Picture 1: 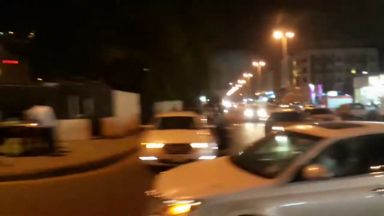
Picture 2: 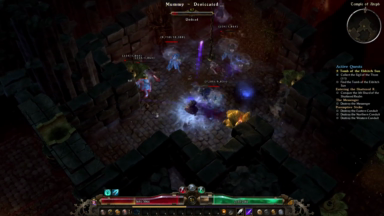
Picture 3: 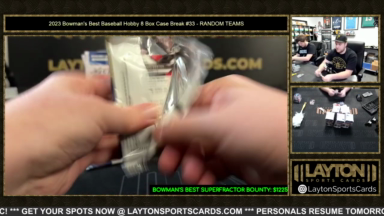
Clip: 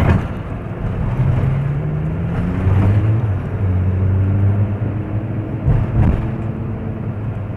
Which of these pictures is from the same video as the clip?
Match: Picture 1